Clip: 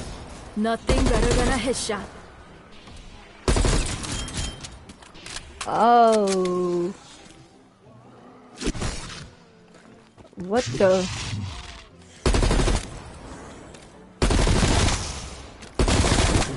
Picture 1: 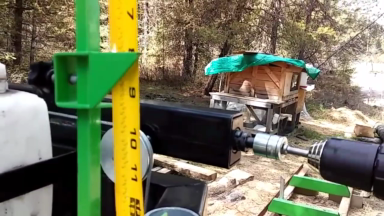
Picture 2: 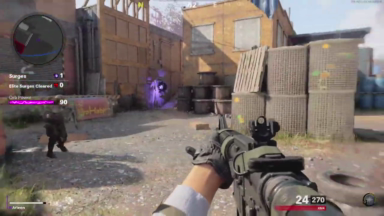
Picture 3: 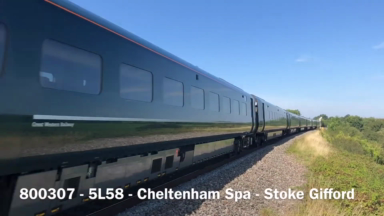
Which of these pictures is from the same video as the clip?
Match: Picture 2